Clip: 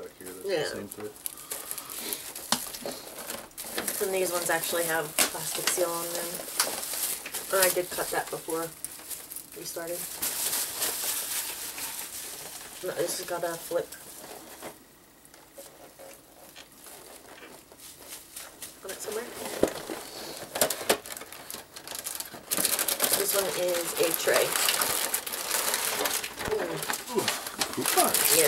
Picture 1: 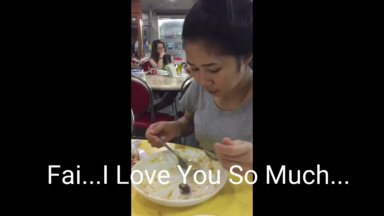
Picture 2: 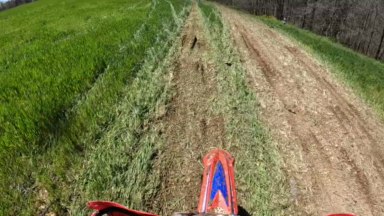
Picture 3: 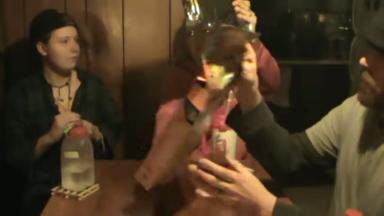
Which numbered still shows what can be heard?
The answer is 3